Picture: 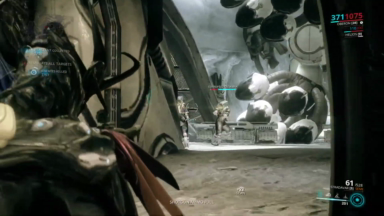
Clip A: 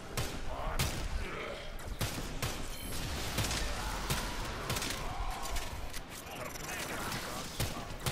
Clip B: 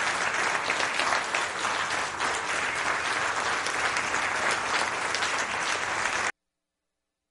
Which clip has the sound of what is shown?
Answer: A